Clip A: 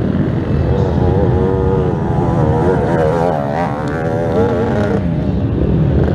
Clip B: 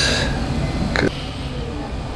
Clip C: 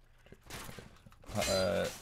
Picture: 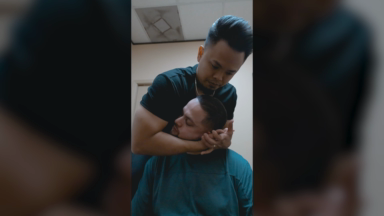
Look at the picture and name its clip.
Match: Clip B